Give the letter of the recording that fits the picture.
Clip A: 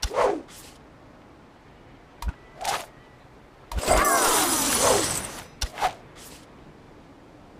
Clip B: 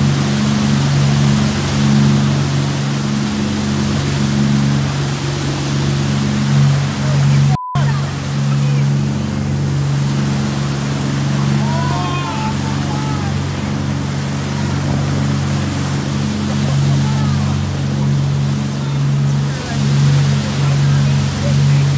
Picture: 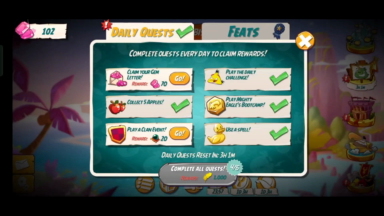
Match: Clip A